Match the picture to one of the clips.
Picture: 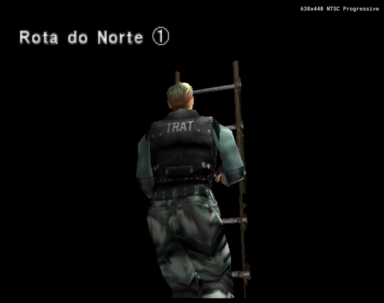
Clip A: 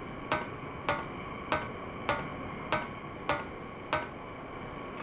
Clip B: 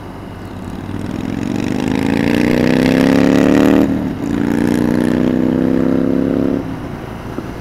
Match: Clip A